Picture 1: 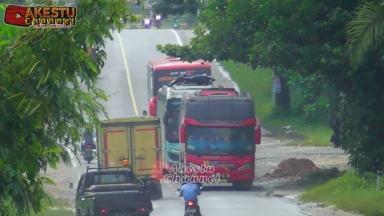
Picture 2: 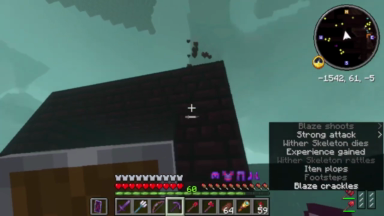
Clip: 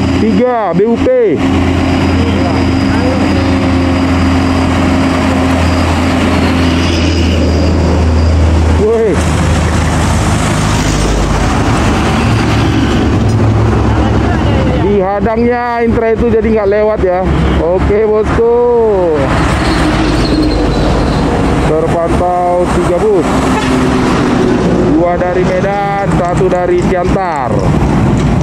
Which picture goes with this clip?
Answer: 1